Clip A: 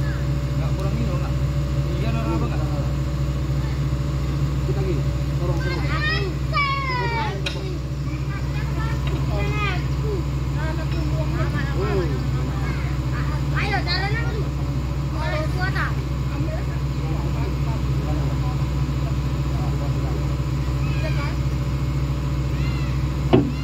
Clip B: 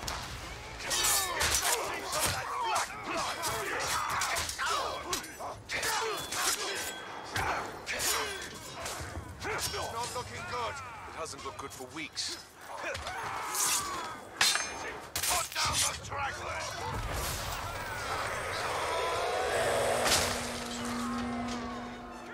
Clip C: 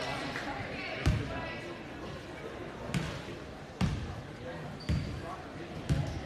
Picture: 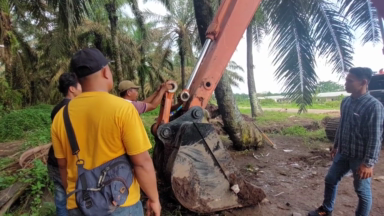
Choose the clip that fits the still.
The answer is A